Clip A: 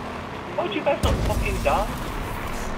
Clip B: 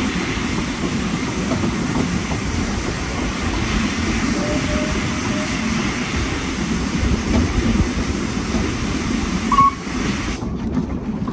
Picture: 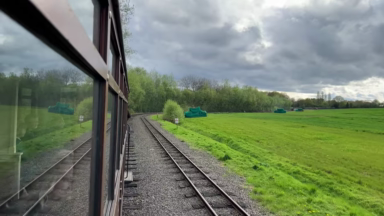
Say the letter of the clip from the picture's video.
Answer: B